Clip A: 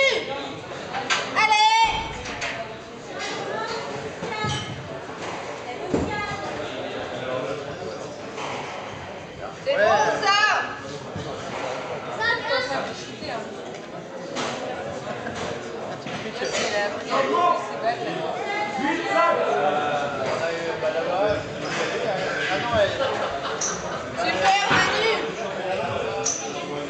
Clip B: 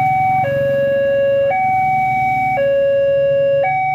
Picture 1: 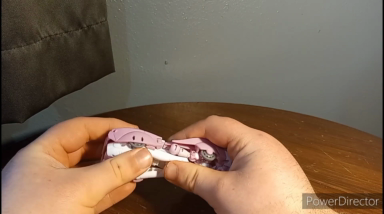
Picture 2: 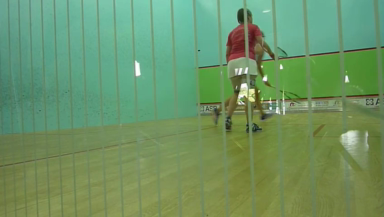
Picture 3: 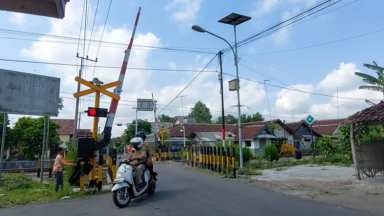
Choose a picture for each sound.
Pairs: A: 2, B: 3